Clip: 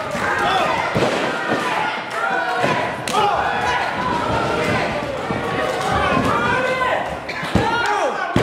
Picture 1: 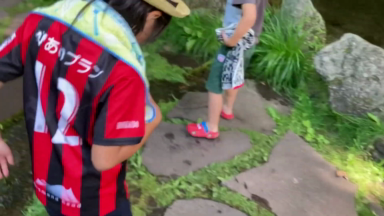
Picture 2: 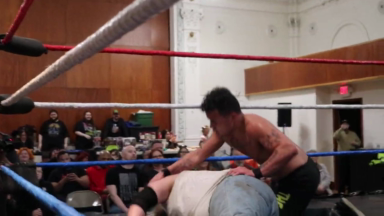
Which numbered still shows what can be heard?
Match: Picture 2